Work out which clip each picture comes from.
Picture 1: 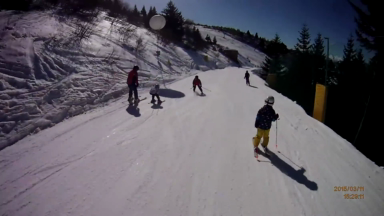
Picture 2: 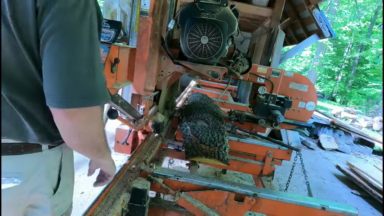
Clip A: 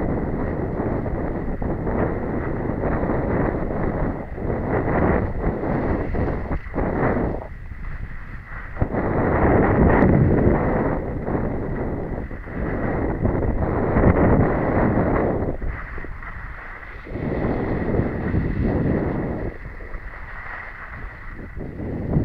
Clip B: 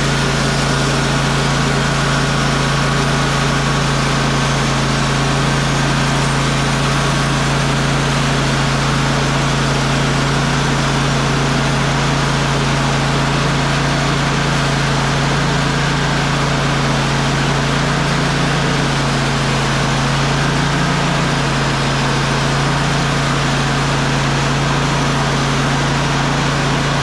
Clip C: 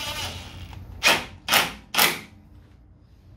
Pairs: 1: A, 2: B